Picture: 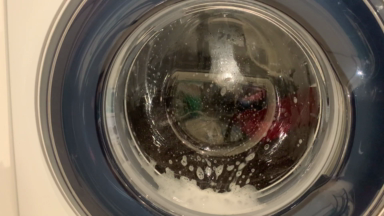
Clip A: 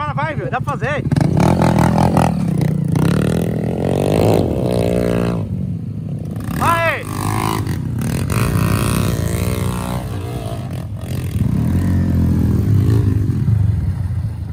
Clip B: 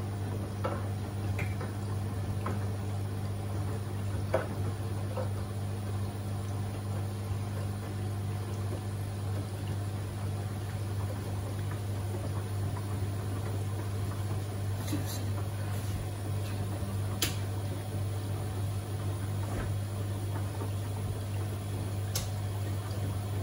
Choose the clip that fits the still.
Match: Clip B